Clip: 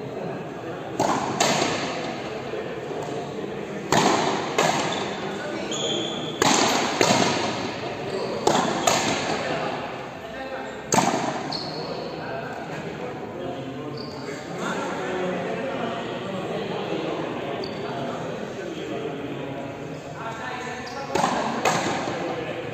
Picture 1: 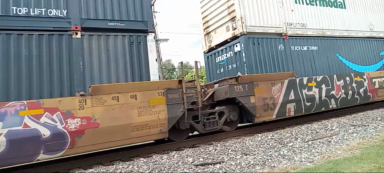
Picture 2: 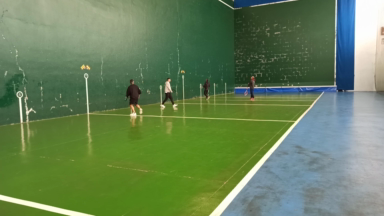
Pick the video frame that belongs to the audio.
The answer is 2